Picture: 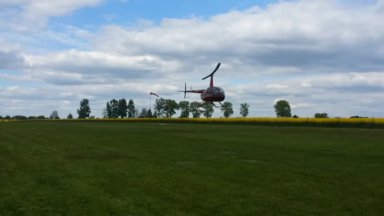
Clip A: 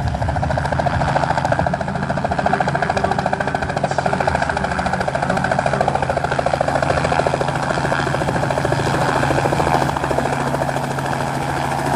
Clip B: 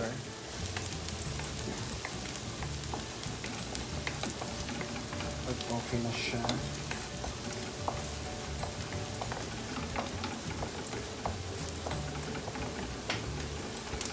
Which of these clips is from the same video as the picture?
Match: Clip A